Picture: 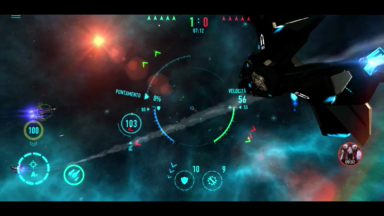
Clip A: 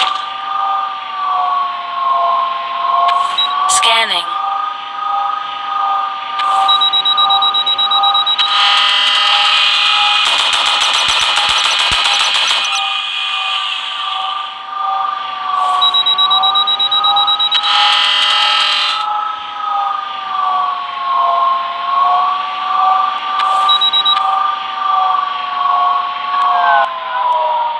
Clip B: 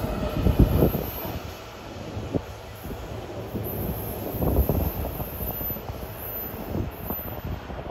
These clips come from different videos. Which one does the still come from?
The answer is A